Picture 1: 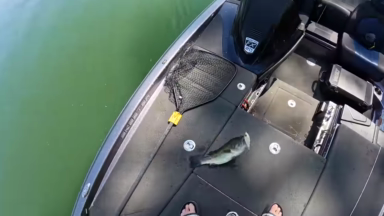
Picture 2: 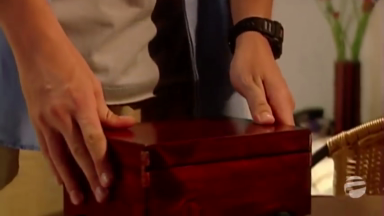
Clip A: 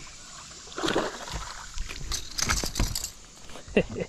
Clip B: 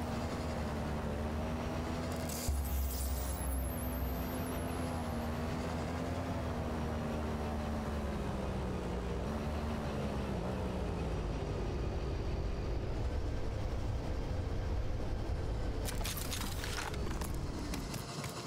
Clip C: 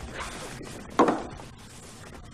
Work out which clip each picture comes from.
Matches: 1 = A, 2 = C